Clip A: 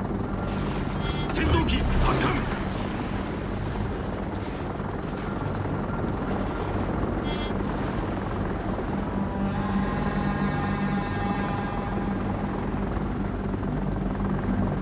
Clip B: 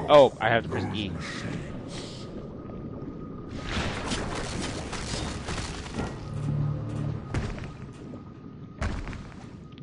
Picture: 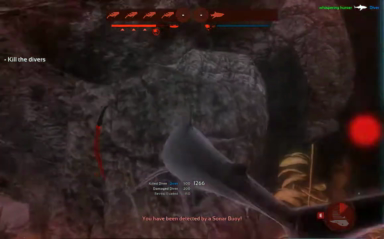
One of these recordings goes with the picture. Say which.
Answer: B